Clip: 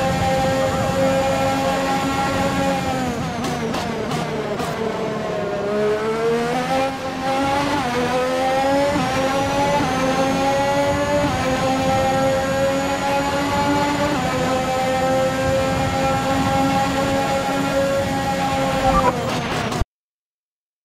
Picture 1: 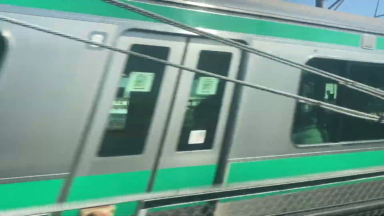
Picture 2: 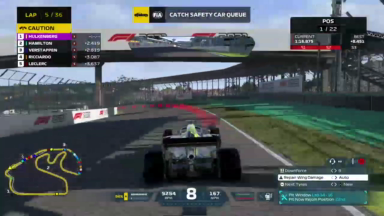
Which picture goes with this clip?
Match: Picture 2